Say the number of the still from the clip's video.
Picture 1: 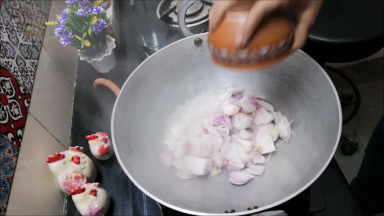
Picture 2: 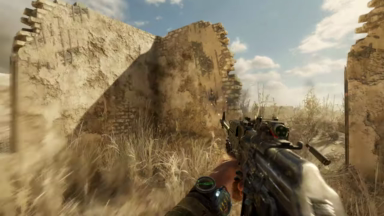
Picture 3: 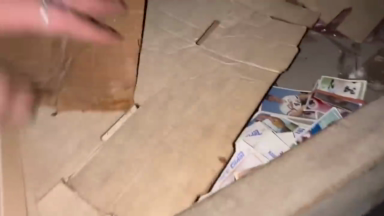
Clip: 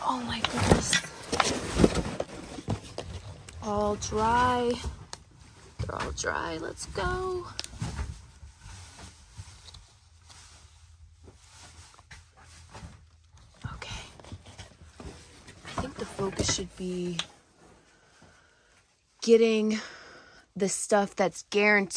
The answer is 3